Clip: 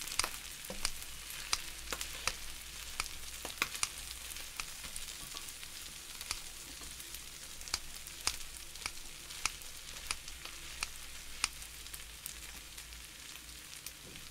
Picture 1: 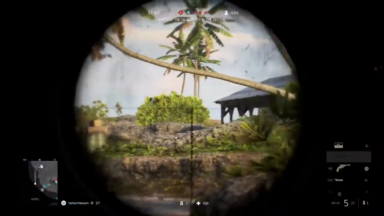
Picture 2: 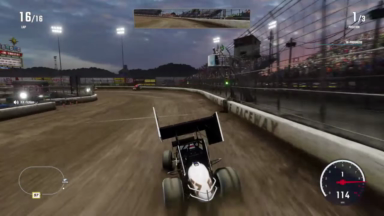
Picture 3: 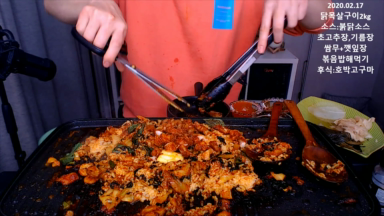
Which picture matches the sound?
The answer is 3